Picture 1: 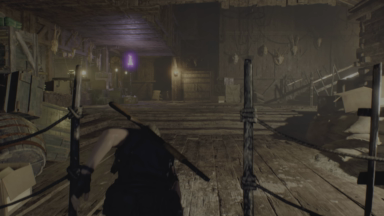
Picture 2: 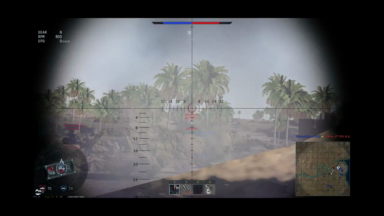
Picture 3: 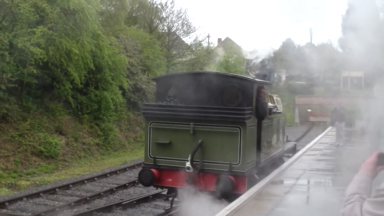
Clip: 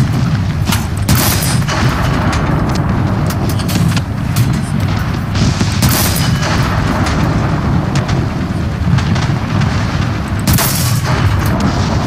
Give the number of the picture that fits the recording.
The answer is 2